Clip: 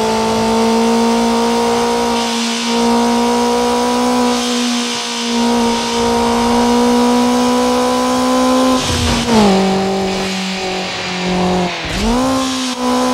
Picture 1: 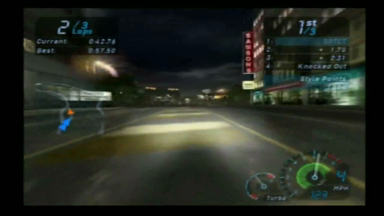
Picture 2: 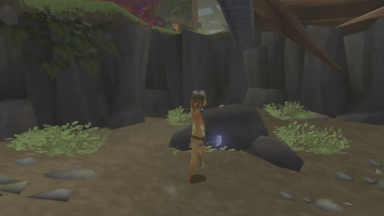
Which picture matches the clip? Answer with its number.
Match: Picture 1